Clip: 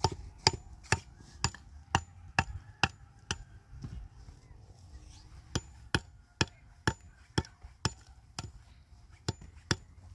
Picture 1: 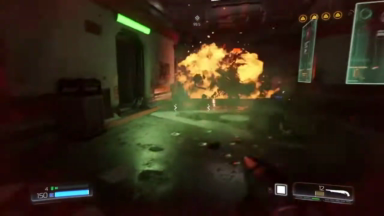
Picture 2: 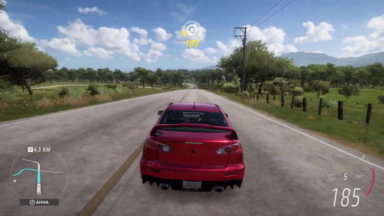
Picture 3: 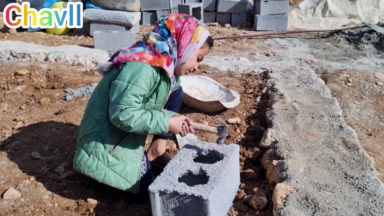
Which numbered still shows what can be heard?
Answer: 3